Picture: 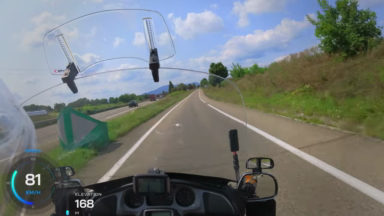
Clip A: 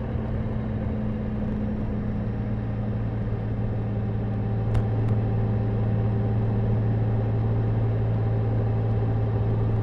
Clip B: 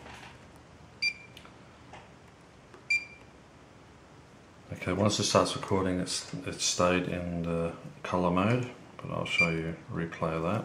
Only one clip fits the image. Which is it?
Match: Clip A